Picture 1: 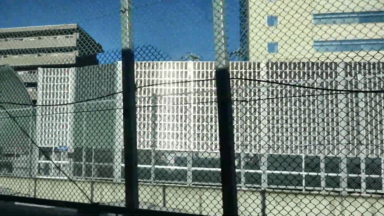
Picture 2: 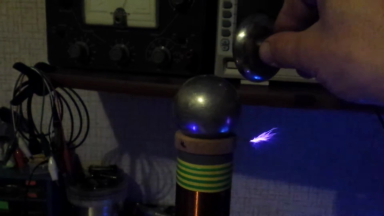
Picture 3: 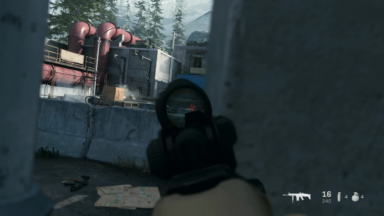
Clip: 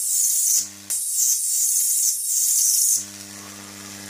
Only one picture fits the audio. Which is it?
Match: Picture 2